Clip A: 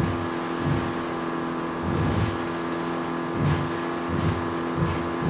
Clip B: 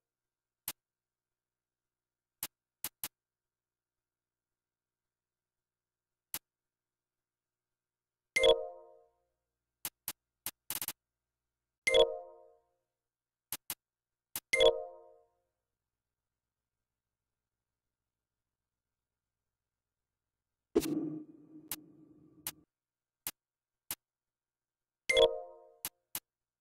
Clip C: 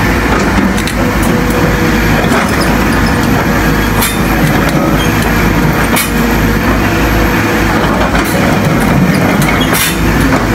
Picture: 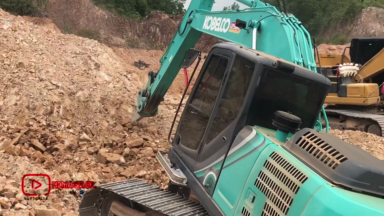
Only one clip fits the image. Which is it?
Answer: C